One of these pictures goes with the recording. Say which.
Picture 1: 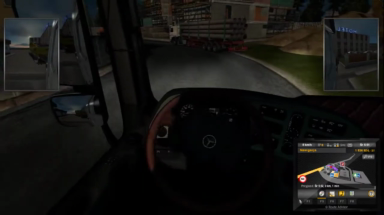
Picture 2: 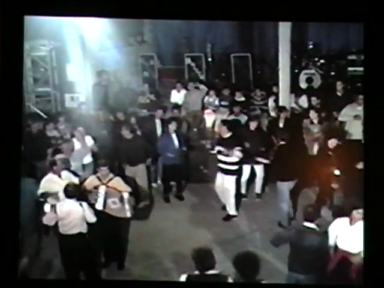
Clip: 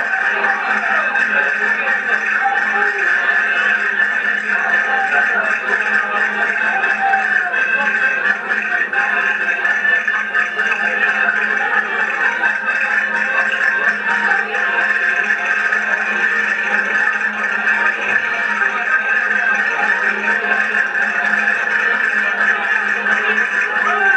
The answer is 2